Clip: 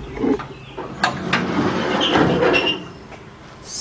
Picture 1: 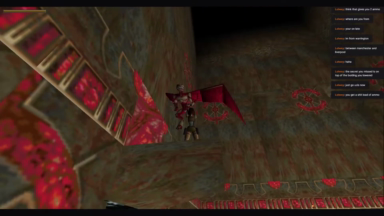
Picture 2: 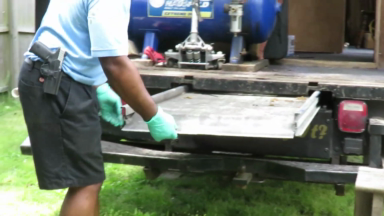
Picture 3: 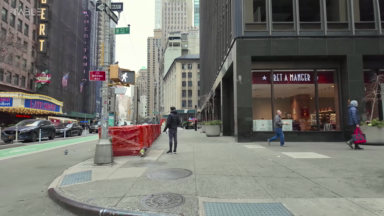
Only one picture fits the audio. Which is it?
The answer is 2